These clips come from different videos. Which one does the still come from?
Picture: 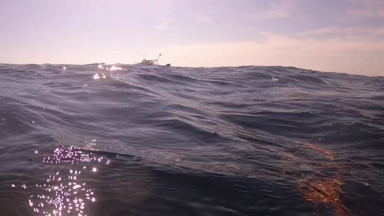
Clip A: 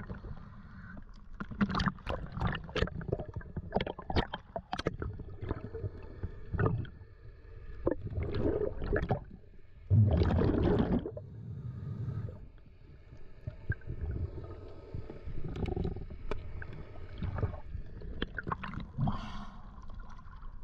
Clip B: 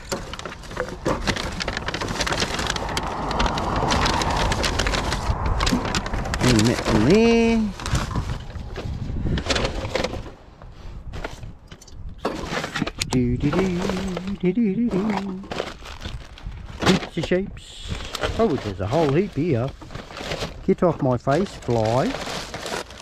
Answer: A